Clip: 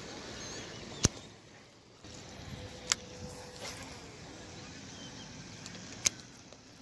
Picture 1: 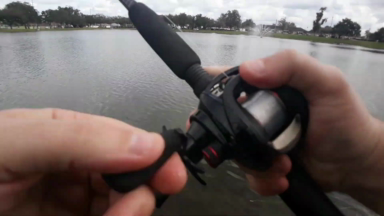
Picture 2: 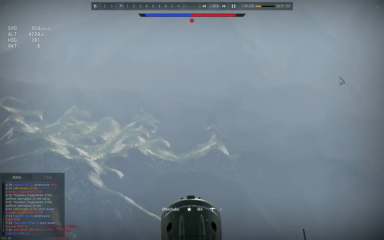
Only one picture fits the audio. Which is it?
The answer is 1